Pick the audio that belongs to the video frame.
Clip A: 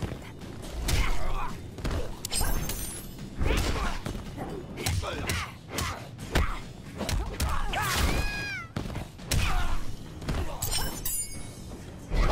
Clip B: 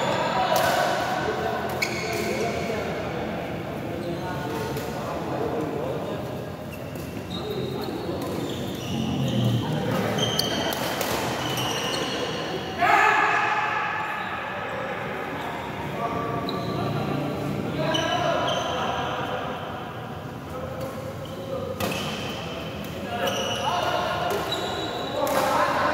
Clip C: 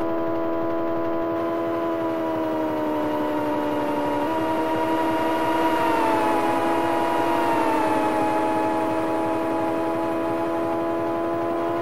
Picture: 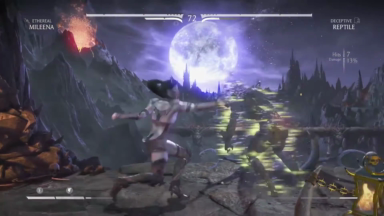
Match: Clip A